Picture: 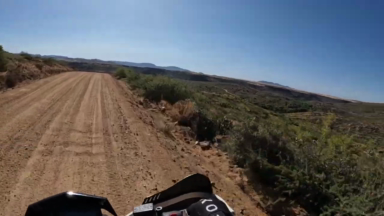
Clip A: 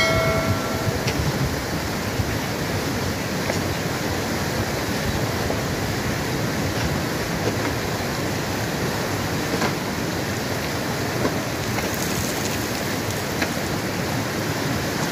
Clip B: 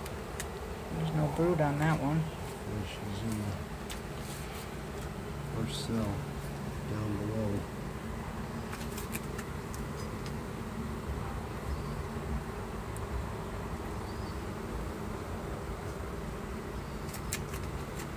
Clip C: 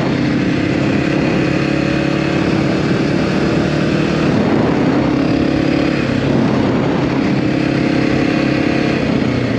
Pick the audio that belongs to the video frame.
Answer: C